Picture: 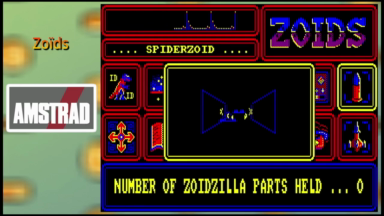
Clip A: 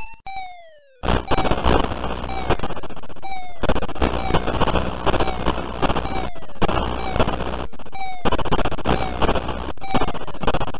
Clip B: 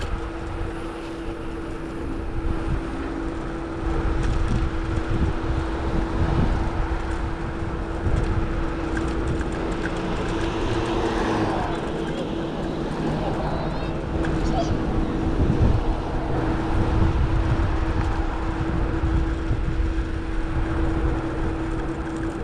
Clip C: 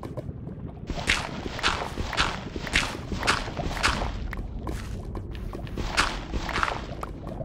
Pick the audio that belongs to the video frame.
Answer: A